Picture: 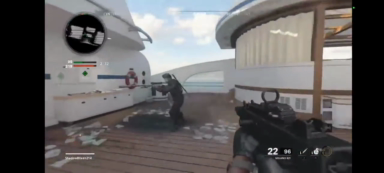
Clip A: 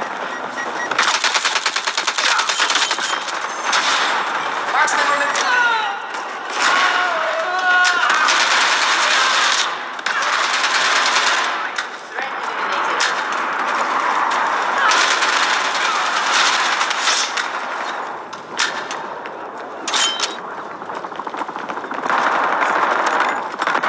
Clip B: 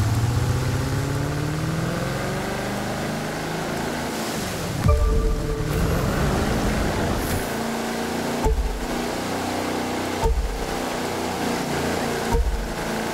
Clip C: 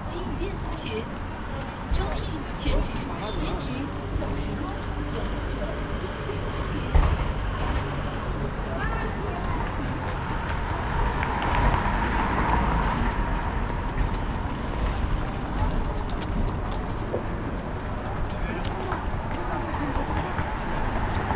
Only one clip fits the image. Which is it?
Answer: A